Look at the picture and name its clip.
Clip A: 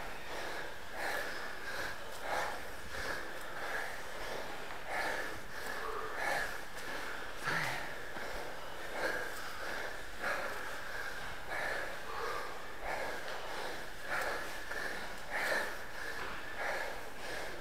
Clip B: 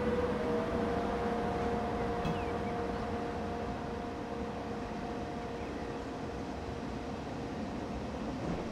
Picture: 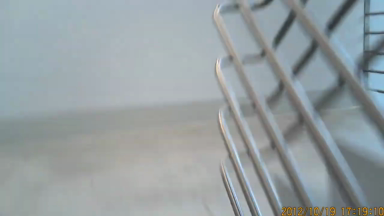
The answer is A